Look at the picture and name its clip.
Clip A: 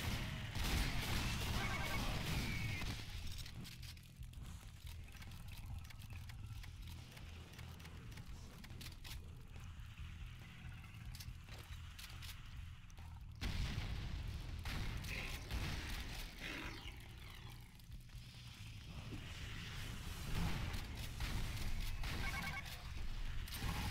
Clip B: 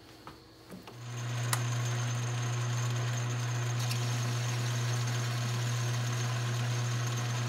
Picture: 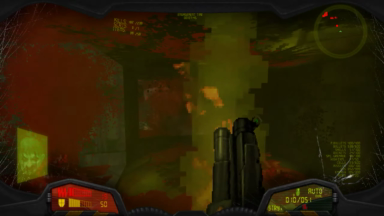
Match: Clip A